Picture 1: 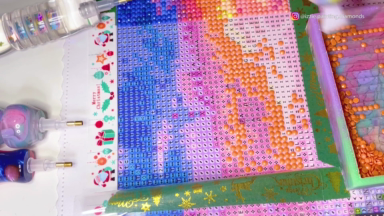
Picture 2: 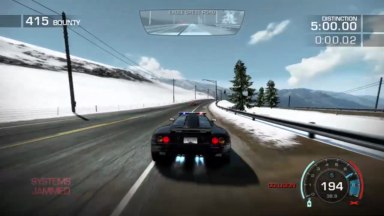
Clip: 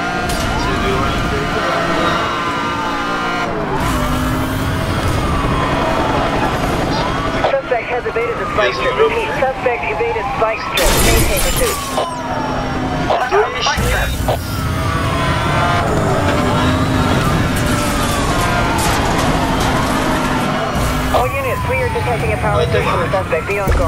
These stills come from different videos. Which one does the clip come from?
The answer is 2